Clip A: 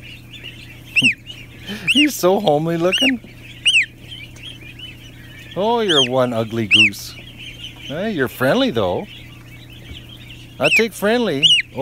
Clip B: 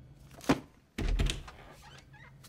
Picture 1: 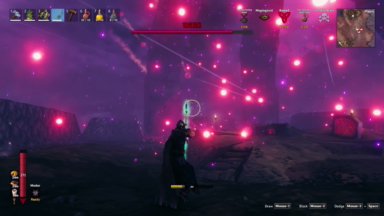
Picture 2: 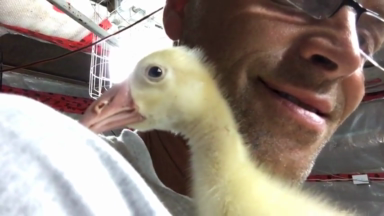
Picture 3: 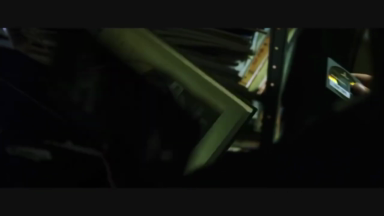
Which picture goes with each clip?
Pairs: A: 2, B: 3